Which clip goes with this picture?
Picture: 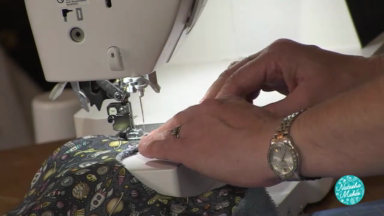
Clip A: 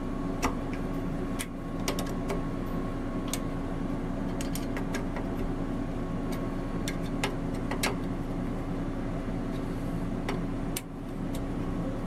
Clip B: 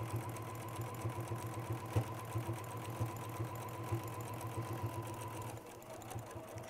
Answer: B